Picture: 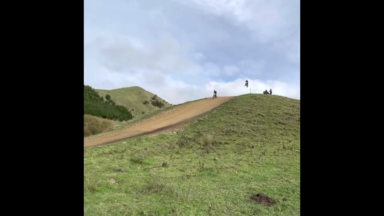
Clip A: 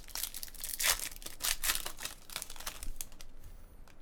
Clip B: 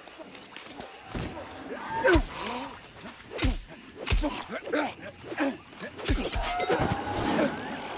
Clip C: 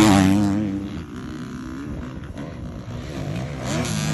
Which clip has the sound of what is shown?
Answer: C